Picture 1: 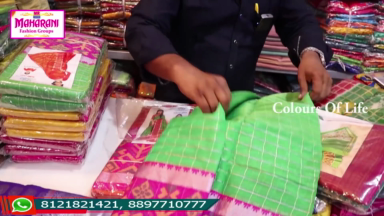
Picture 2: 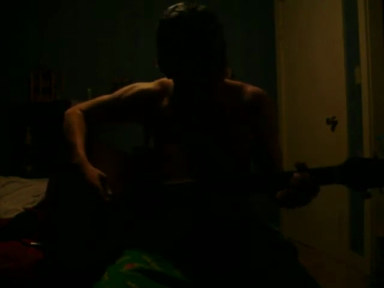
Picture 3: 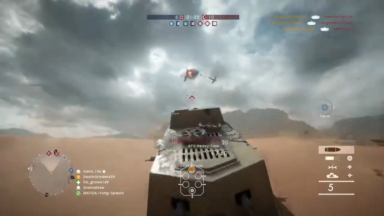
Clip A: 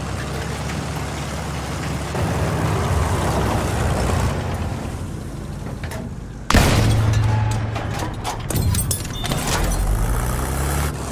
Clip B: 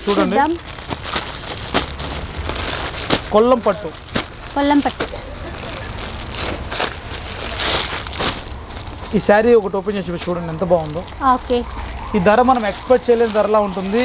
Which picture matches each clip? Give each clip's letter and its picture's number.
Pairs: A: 3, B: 1